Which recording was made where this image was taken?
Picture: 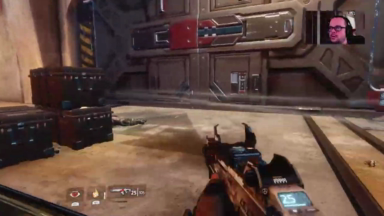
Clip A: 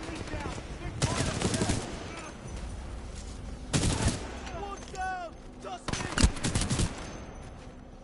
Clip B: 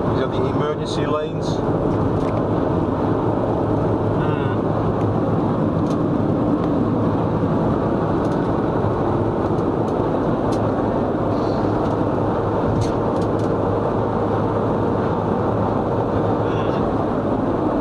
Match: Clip A